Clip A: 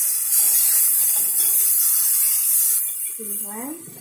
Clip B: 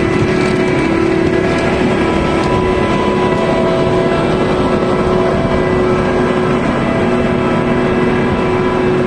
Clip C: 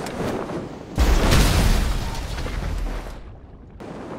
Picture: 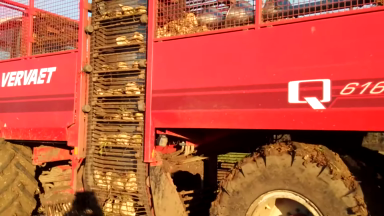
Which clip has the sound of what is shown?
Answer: B